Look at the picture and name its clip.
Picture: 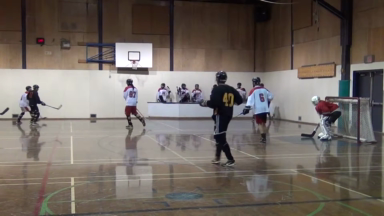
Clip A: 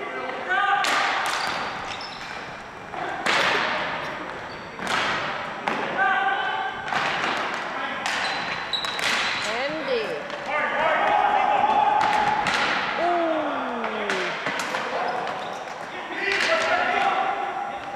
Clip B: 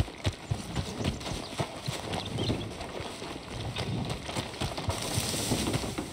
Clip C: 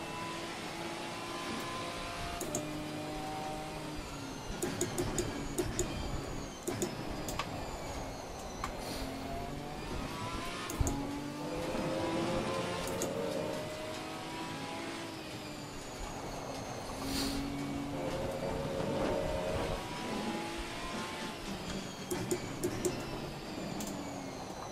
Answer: A